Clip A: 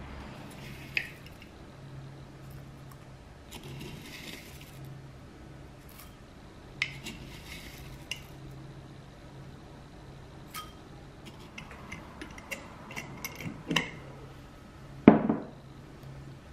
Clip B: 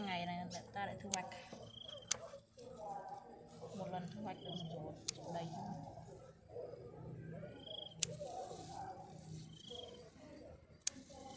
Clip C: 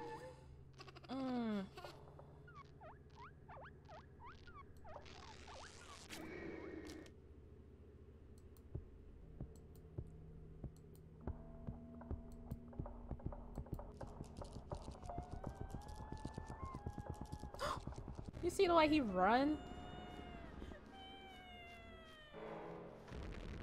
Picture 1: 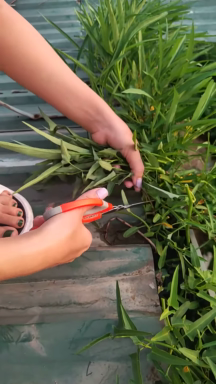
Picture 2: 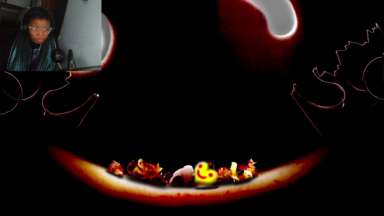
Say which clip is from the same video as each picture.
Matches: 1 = B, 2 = C